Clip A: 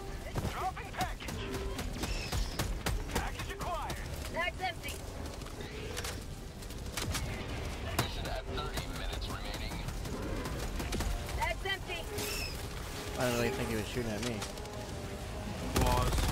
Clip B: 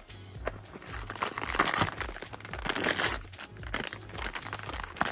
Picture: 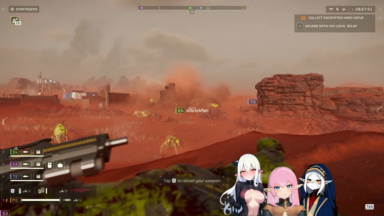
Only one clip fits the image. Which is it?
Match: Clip A